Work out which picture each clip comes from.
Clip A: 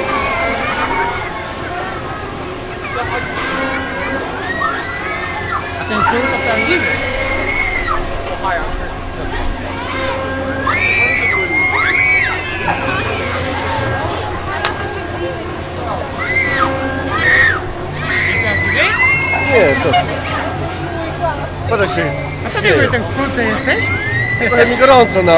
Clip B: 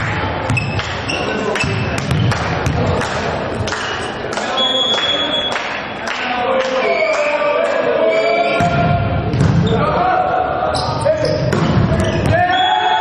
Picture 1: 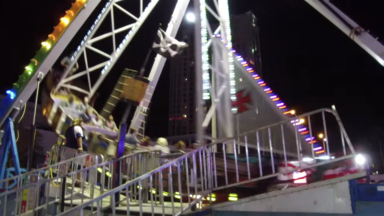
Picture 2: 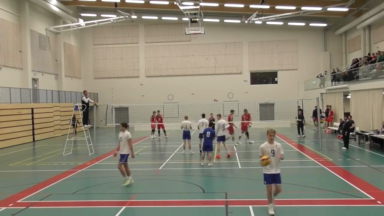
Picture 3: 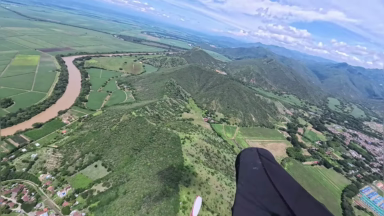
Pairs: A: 1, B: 2